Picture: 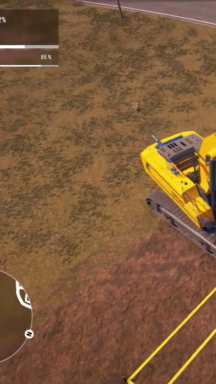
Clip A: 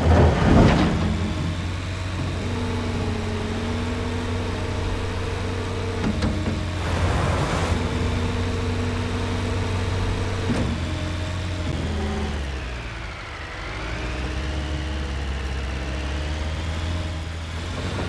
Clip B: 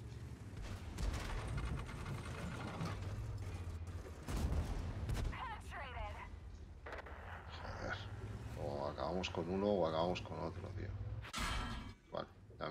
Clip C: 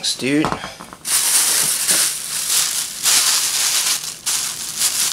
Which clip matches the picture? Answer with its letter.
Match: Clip A